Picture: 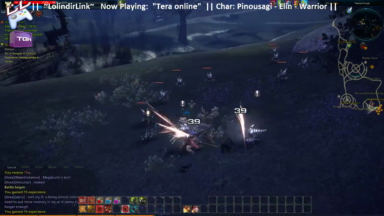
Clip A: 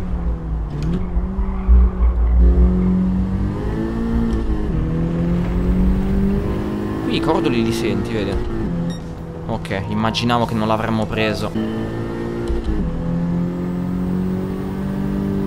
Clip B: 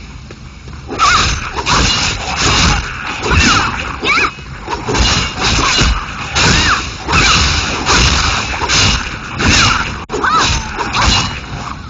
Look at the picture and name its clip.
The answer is B